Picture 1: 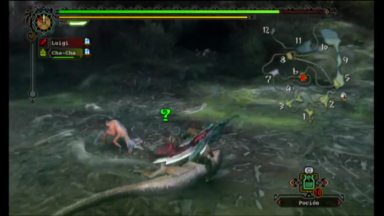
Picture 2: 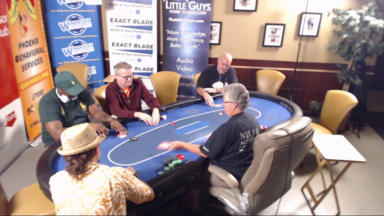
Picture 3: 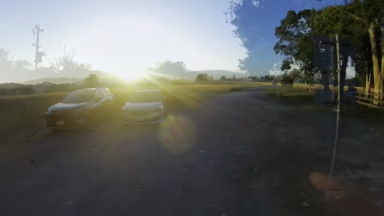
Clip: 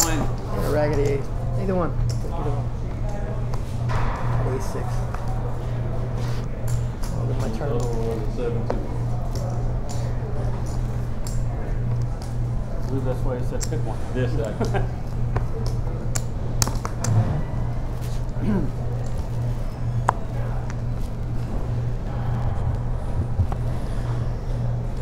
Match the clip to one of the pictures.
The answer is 2